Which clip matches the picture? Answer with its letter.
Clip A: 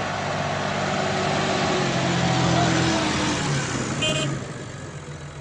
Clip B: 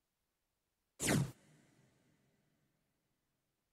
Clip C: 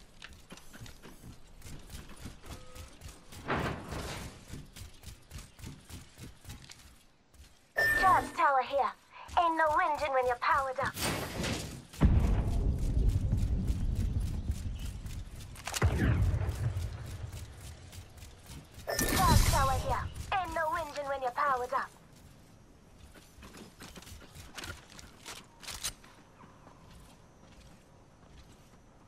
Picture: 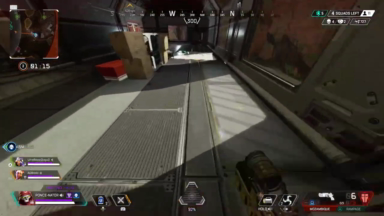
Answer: C